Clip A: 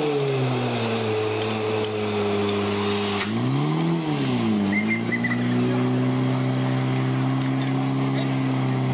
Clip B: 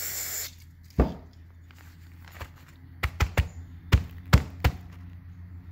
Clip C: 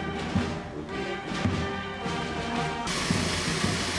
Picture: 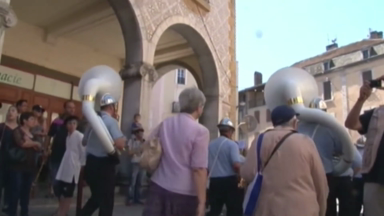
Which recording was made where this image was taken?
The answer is C